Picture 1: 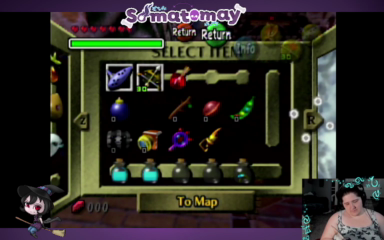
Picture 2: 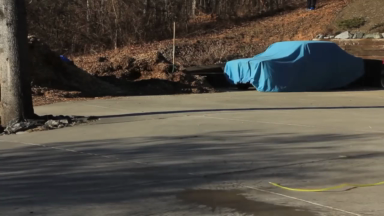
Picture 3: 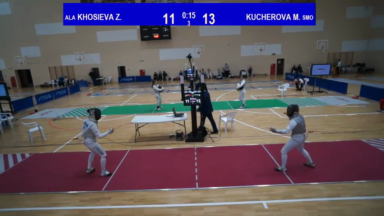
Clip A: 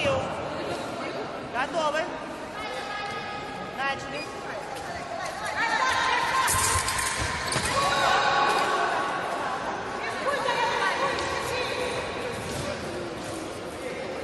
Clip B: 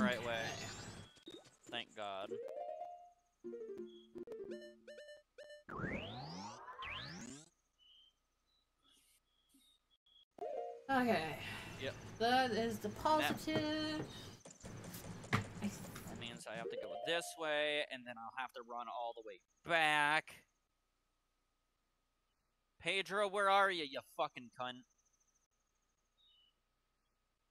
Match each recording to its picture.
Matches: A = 3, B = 1